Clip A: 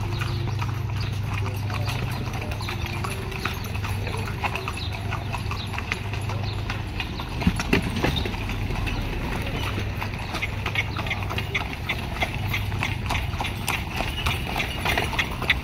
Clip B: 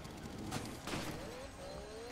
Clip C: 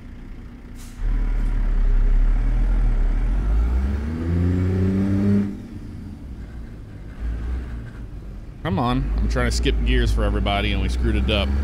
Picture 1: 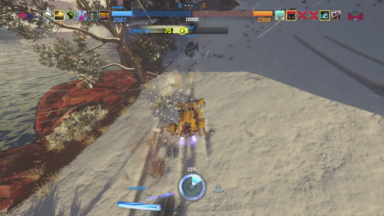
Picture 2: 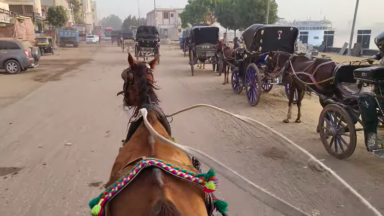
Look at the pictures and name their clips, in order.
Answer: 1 B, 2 A